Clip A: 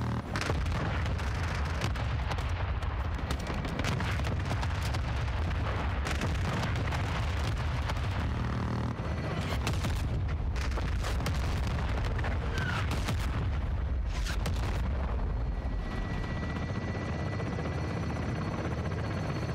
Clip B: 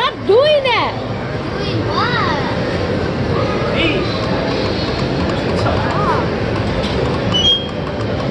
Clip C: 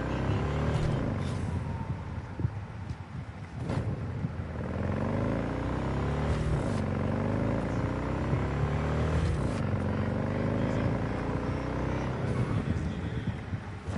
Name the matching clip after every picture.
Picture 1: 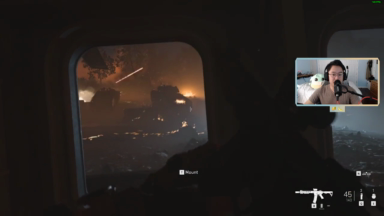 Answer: A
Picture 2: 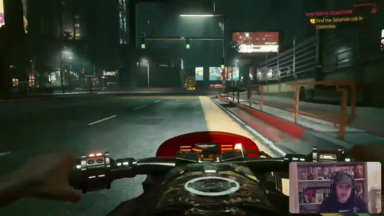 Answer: C